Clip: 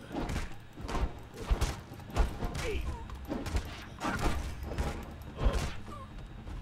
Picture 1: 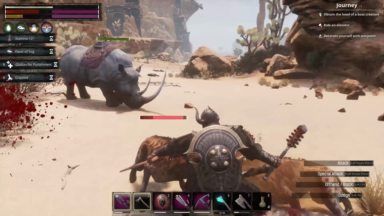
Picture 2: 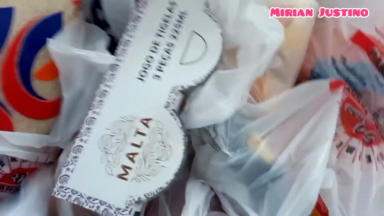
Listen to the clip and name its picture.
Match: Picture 1